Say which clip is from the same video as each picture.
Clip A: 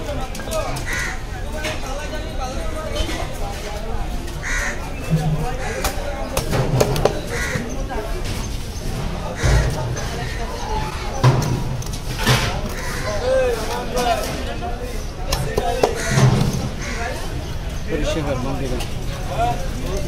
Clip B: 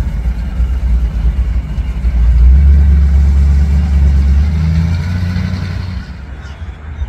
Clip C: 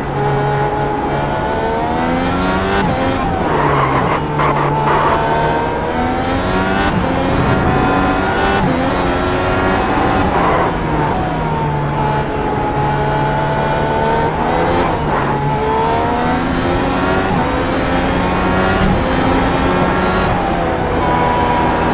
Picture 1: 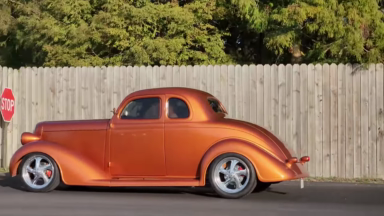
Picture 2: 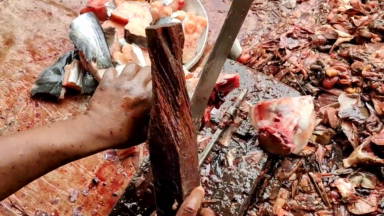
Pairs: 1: B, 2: A